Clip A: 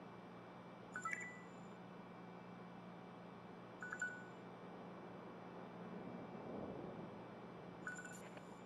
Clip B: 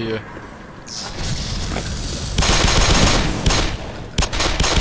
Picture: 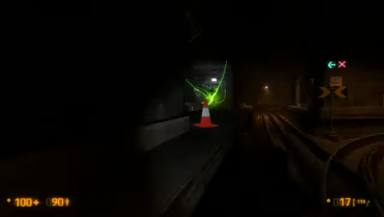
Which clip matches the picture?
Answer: B